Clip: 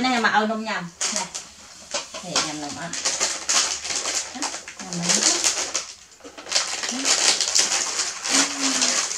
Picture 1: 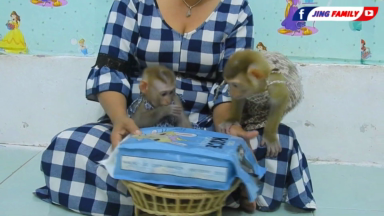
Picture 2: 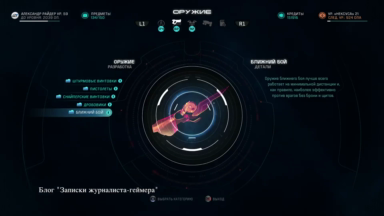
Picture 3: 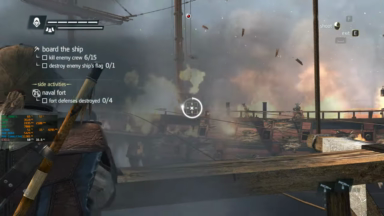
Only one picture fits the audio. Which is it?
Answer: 1